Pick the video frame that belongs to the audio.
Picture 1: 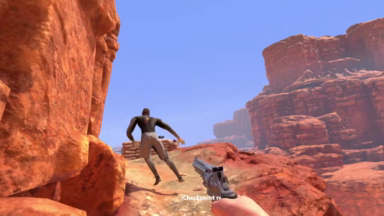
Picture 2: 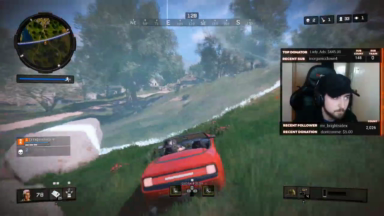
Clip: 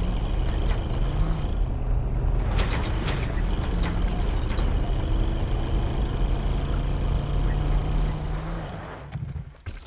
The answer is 2